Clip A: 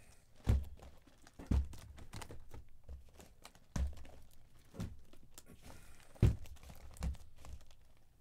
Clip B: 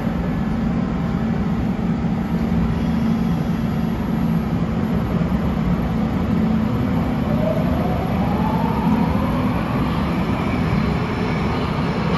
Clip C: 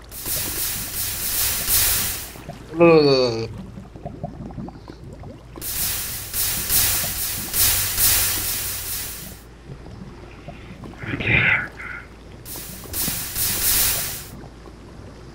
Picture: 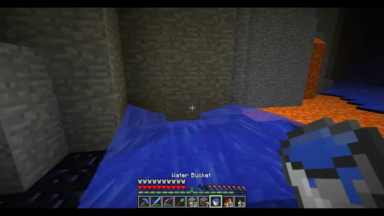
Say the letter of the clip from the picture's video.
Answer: C